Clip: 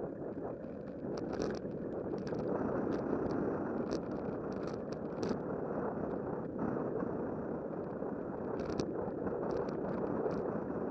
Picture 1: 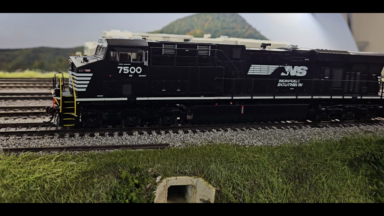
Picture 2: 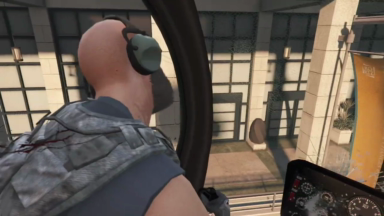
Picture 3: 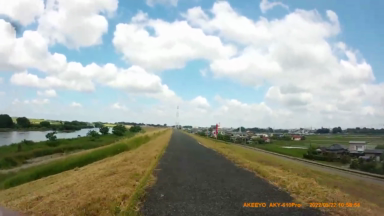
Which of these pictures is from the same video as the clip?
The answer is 3